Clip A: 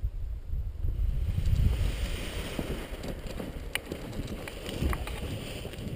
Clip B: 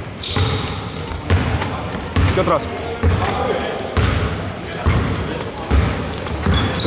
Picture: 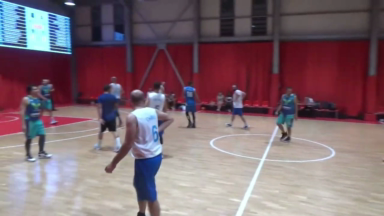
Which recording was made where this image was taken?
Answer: B